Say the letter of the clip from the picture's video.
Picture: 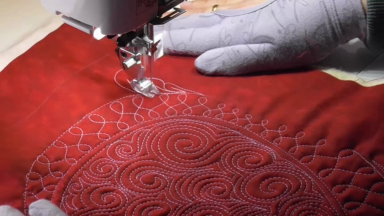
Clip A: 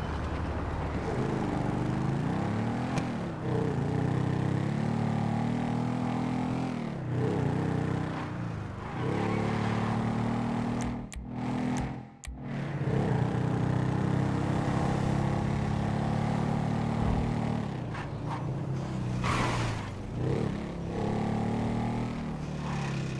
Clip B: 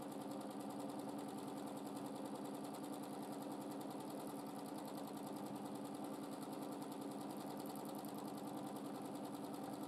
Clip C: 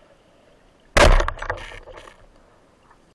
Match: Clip B